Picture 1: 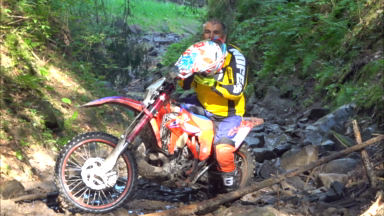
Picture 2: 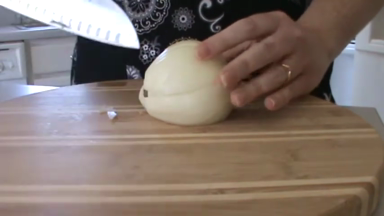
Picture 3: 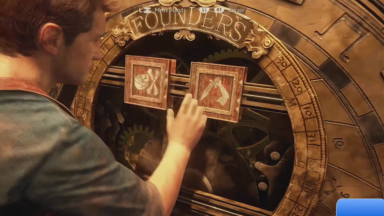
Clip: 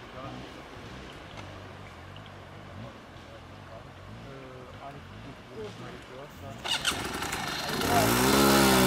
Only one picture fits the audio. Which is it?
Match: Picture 1